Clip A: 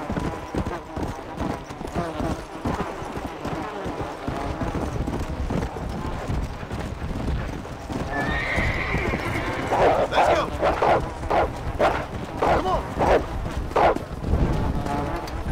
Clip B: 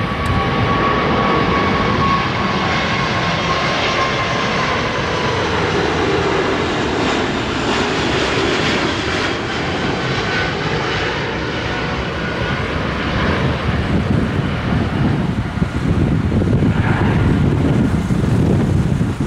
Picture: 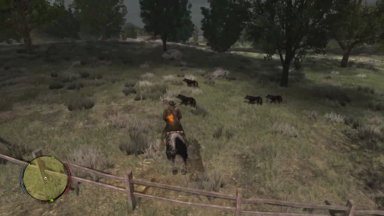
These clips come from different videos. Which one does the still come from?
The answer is A